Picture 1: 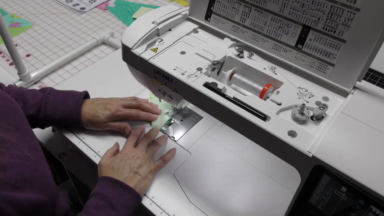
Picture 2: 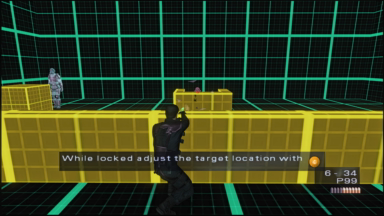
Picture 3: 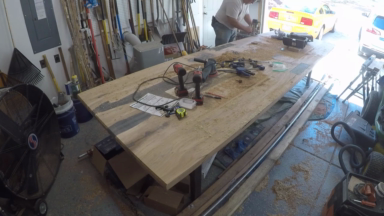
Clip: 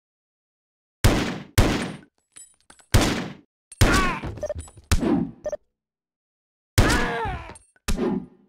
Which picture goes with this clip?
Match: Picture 2